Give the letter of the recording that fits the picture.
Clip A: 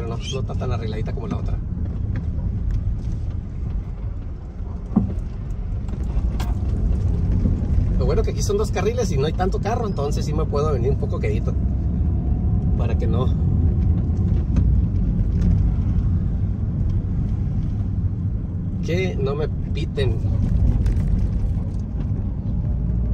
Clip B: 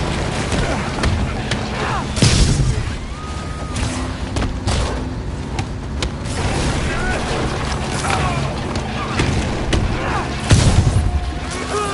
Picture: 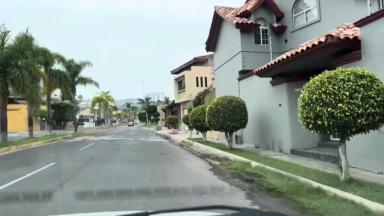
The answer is A